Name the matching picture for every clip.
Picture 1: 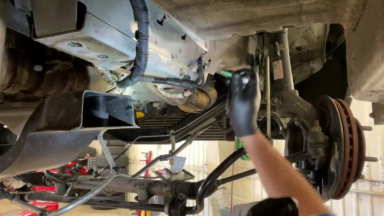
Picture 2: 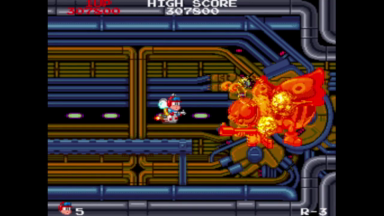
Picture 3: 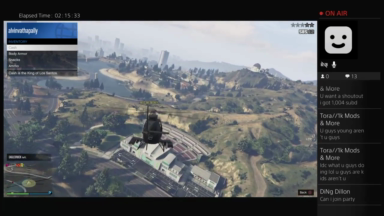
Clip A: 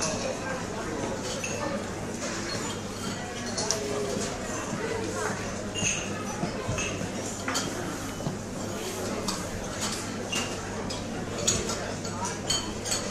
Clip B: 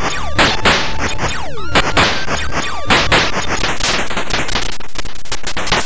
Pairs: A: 1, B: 2